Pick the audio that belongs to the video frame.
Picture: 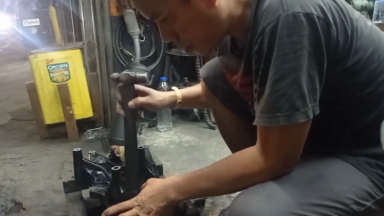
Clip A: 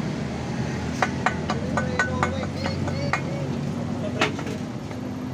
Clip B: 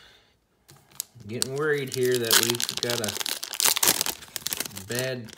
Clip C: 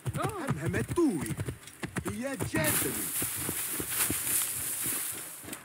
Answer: A